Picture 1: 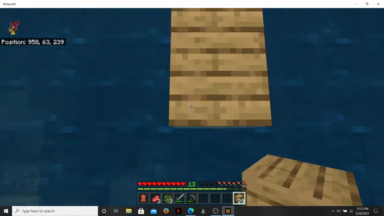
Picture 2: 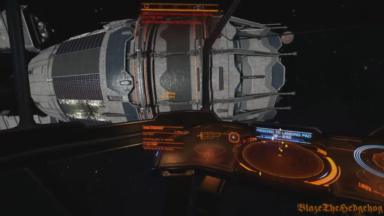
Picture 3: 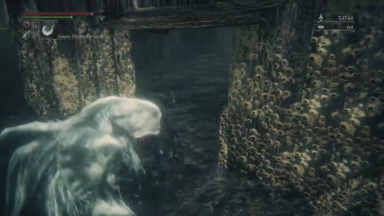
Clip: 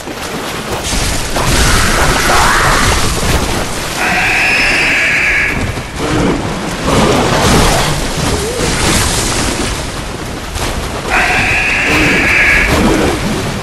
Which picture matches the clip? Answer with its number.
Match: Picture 3